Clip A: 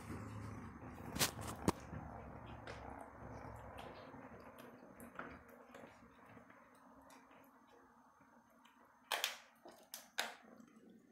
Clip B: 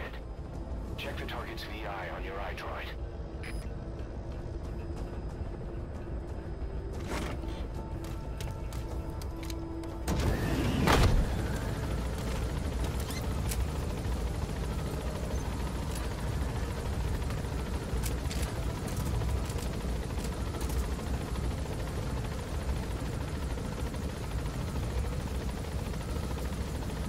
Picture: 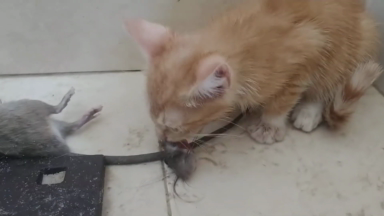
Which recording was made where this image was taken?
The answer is A